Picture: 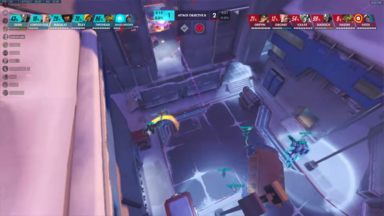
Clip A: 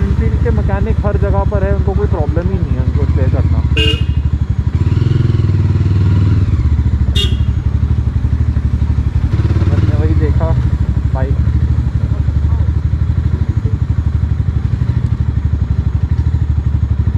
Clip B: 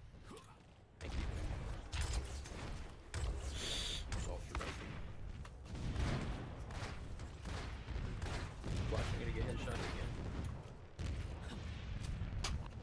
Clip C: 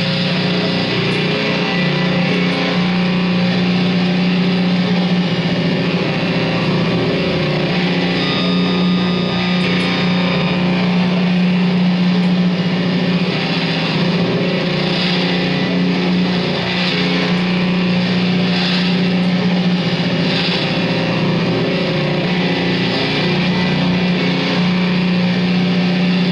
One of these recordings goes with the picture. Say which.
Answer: B